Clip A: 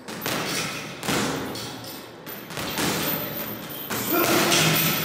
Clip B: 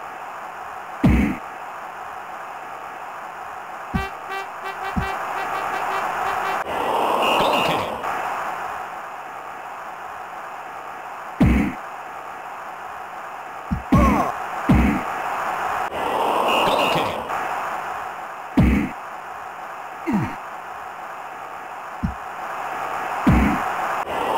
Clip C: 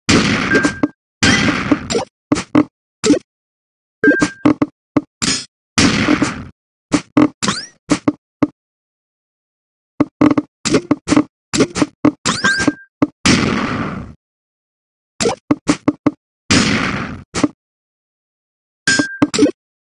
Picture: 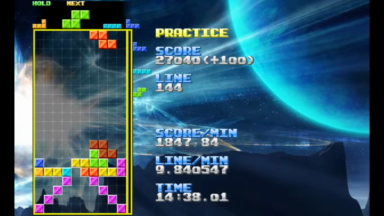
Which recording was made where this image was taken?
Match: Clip C